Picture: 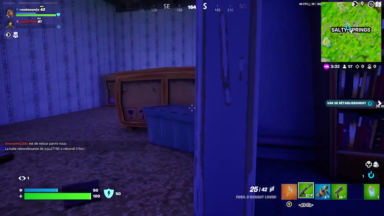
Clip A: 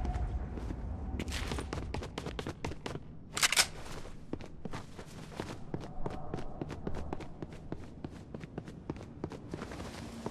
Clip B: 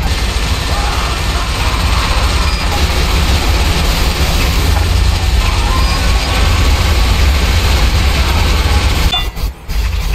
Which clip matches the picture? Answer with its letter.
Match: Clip A